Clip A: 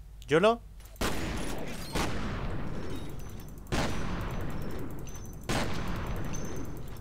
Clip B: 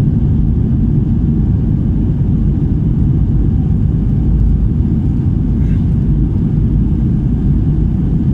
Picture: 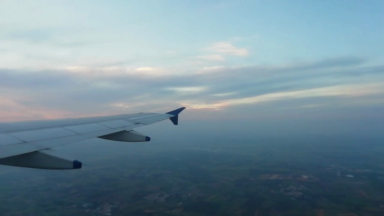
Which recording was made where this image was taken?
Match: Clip B